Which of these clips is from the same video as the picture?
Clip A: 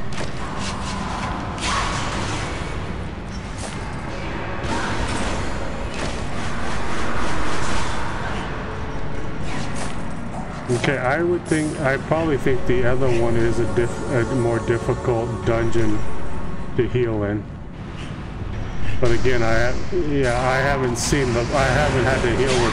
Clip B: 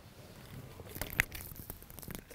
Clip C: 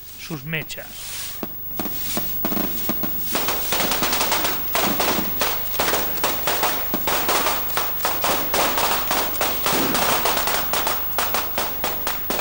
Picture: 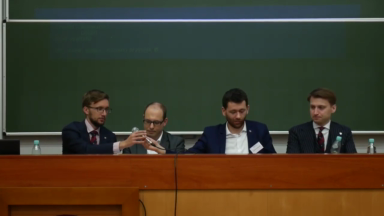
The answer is B